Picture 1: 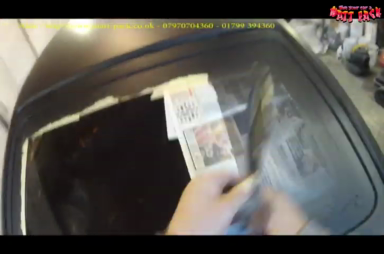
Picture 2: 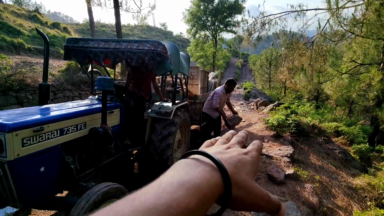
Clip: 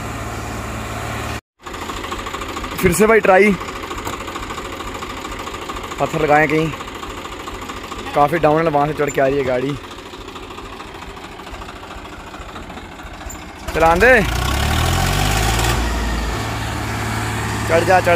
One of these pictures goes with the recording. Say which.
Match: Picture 2